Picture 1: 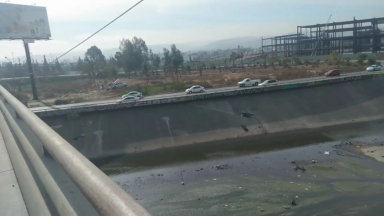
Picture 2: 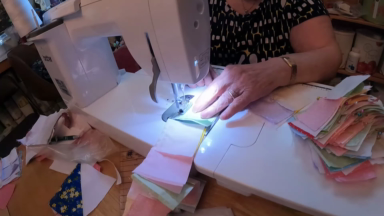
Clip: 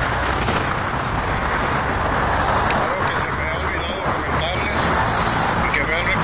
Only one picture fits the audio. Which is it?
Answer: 1